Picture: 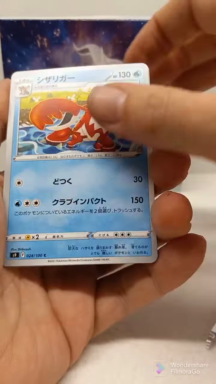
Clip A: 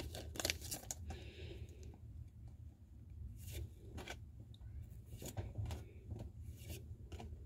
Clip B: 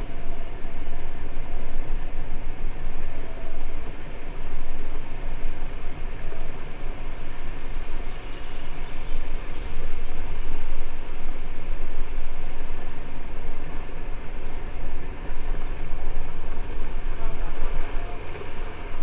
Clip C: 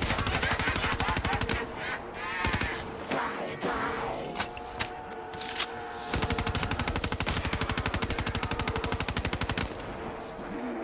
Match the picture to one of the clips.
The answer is A